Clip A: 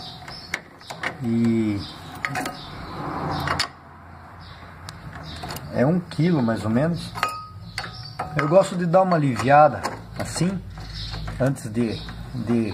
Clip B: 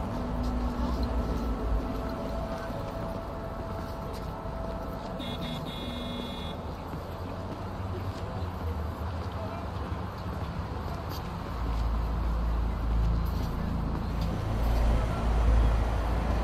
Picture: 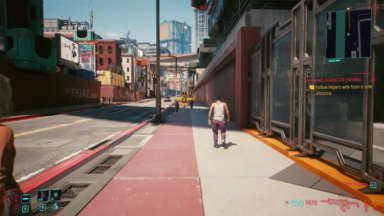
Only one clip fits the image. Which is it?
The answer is B